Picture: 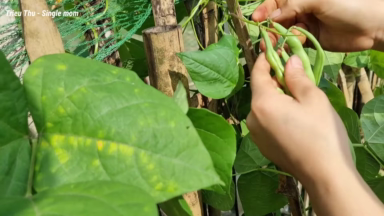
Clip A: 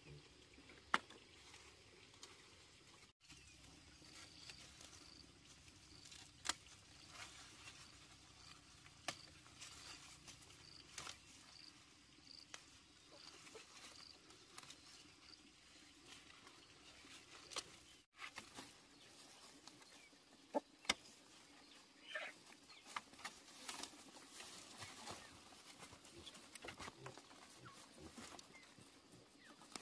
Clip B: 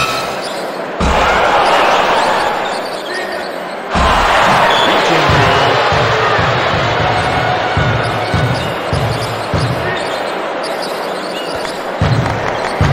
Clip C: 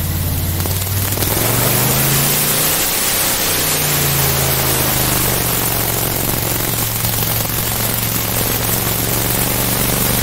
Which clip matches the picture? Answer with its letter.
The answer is A